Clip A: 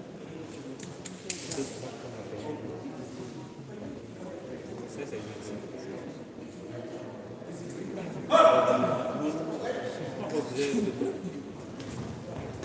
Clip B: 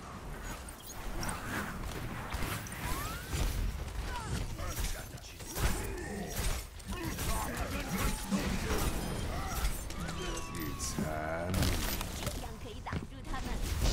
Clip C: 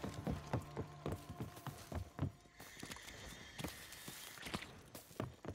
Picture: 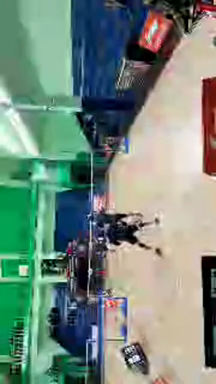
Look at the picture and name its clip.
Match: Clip A